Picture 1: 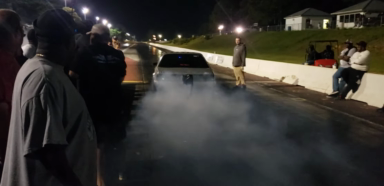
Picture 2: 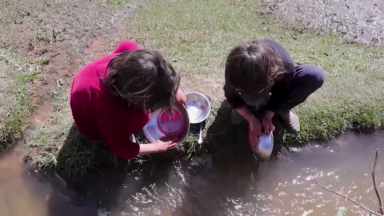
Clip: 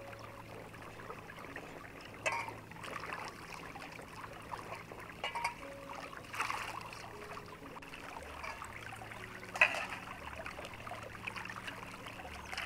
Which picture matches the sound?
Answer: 2